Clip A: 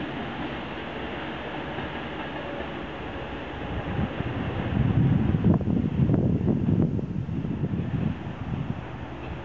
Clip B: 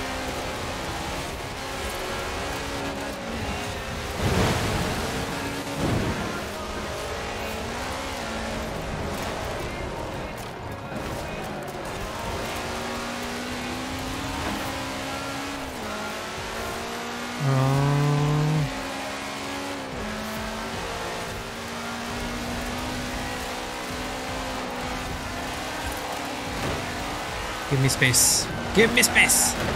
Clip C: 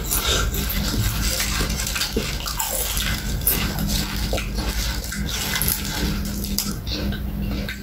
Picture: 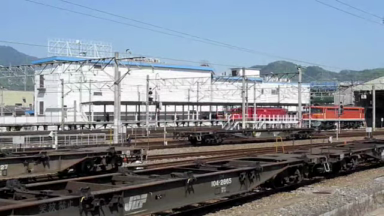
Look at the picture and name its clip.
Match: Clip A